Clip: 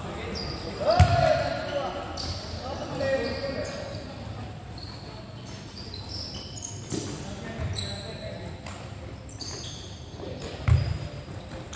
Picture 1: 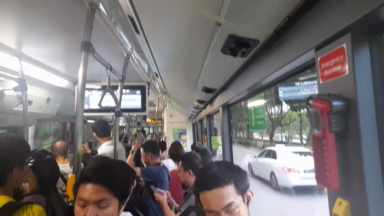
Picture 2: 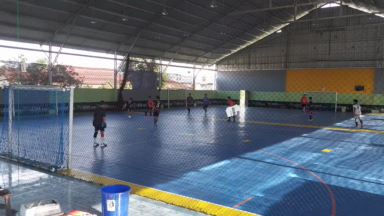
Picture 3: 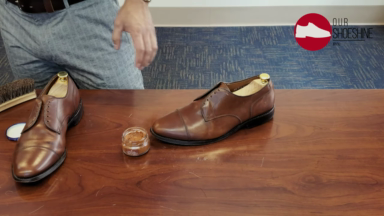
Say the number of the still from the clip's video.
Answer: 2